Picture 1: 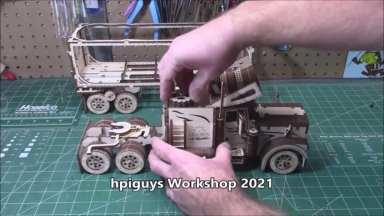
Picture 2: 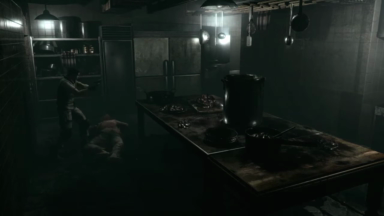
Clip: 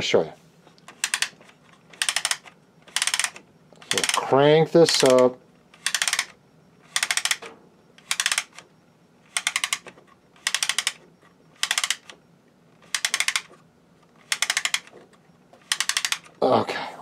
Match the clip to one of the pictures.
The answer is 1